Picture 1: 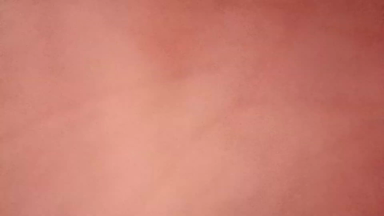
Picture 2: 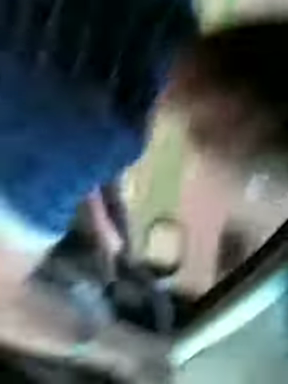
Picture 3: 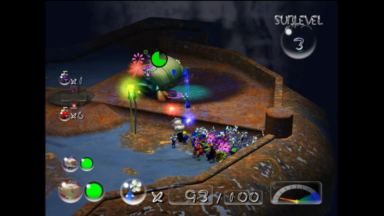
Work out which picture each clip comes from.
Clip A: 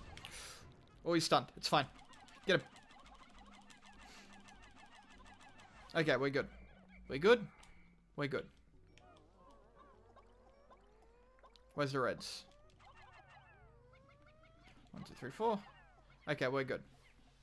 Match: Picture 3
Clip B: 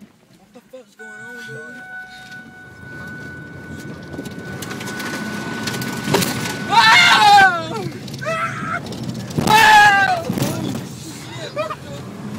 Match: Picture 2